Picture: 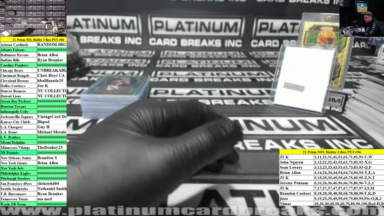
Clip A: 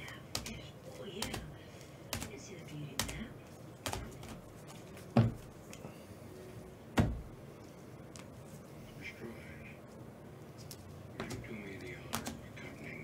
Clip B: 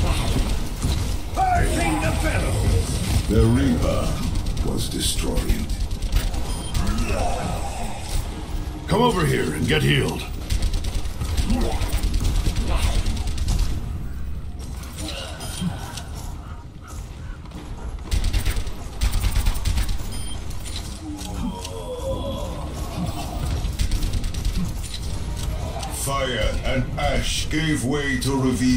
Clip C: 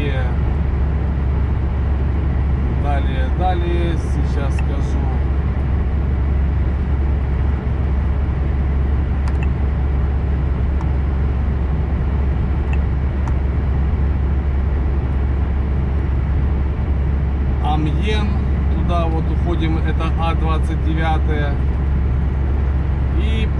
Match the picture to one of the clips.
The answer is A